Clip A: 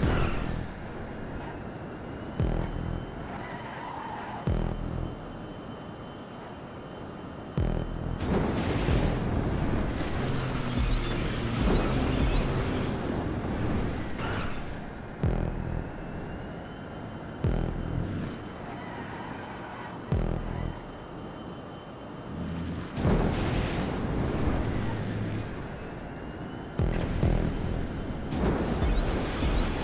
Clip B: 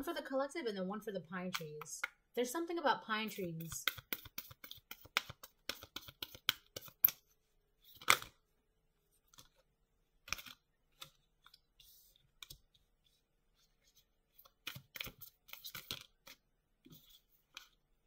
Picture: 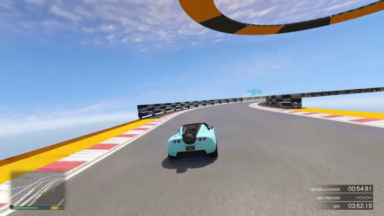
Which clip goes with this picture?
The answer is A